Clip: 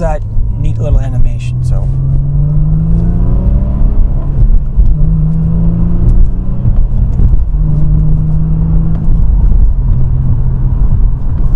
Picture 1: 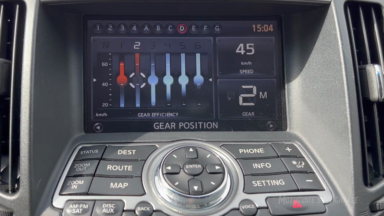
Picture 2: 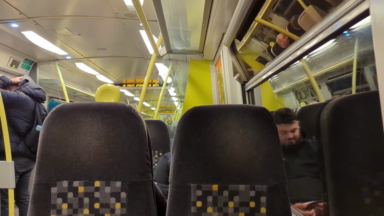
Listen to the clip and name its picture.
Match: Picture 1